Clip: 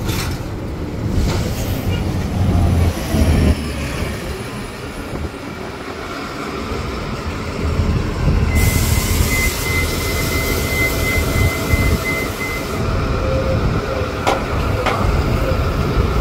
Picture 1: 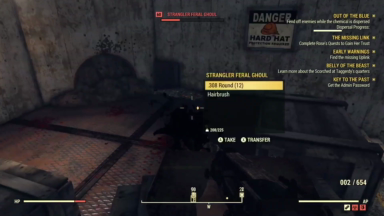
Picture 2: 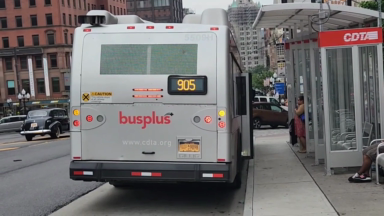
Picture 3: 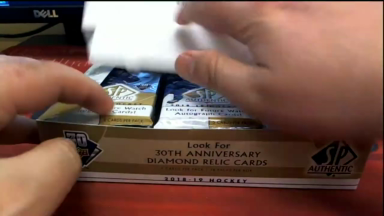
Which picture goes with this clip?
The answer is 2